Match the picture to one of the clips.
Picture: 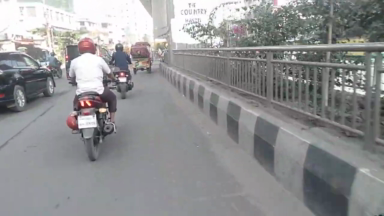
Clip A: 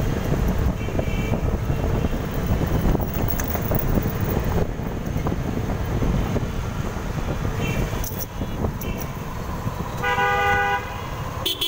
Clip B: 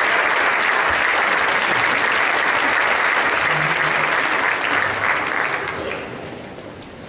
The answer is A